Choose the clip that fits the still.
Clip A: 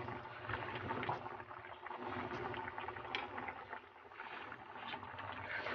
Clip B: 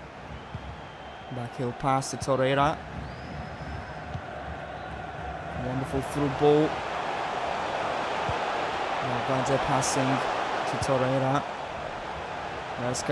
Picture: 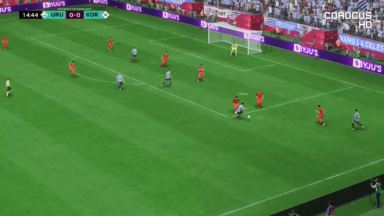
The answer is B